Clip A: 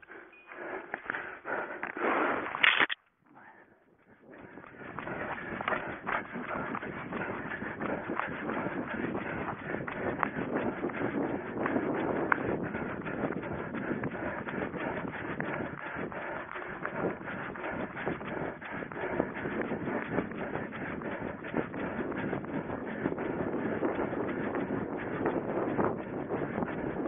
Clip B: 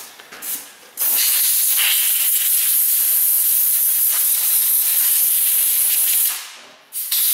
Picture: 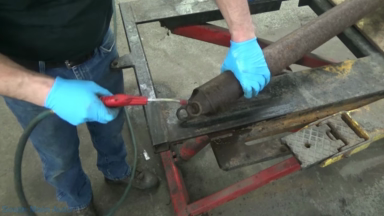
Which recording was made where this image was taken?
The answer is B